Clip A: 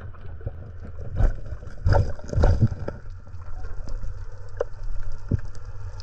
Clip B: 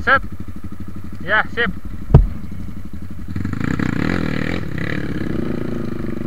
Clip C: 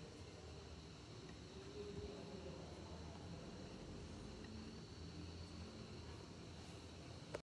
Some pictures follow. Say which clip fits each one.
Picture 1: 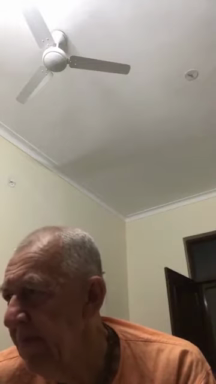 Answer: C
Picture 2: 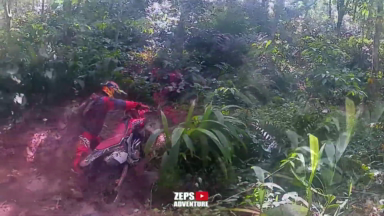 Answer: B